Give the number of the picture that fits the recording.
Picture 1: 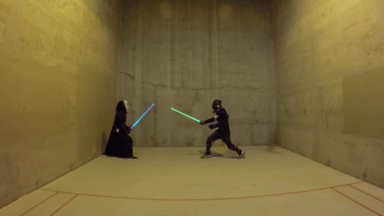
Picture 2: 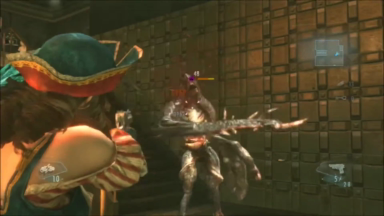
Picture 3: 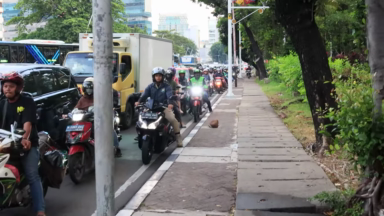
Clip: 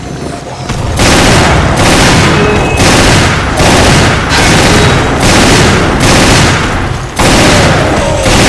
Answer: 2